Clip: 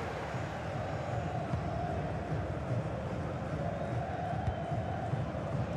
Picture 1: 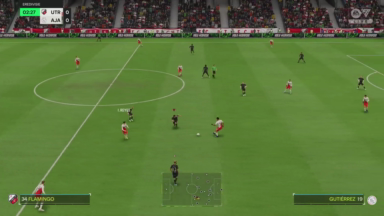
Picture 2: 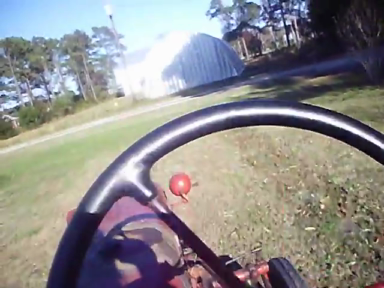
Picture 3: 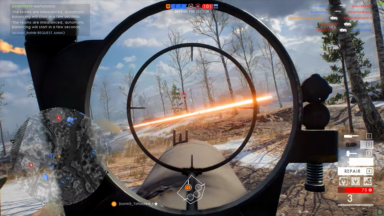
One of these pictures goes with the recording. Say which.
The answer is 1